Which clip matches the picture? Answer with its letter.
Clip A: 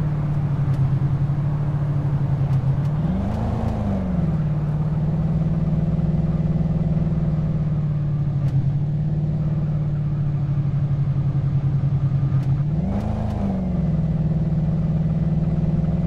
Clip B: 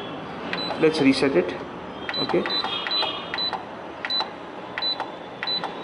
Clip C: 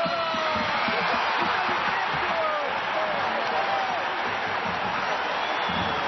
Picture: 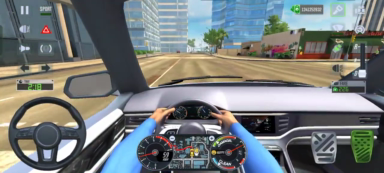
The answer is A